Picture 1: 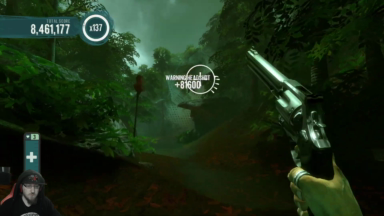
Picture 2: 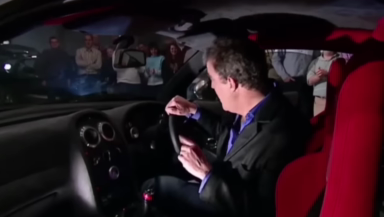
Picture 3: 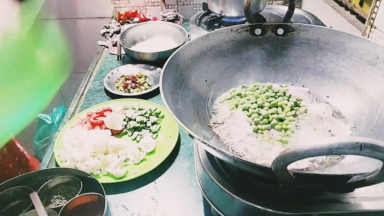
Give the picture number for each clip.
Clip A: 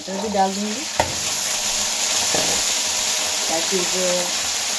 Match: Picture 3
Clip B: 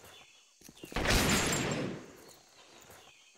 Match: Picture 1